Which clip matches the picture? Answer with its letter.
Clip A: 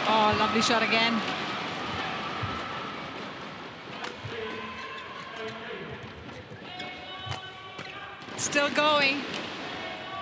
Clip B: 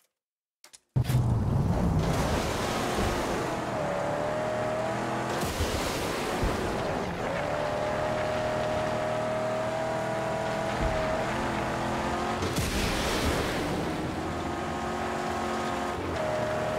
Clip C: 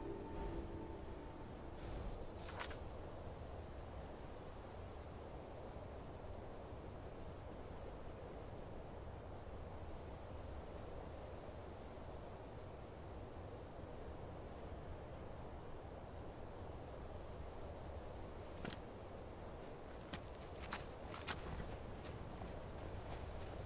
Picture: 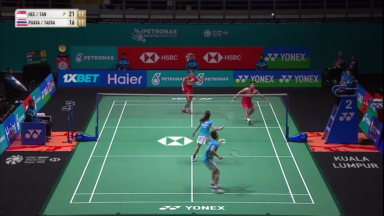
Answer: A